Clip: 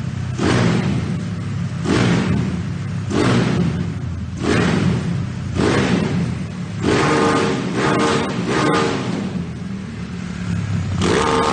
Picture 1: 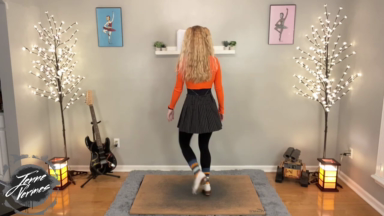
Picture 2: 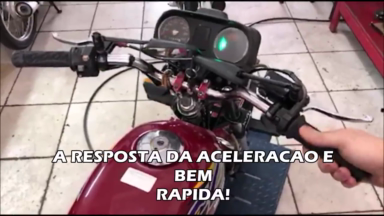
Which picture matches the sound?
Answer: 2